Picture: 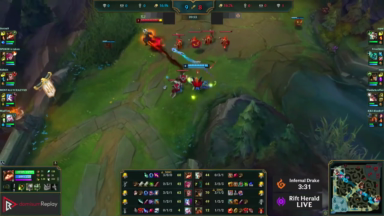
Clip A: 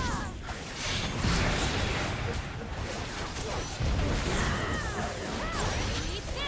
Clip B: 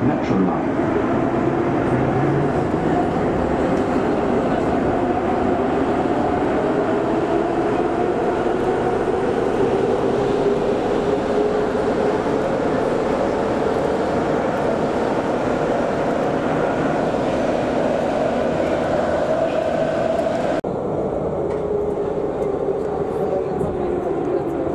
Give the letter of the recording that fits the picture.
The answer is A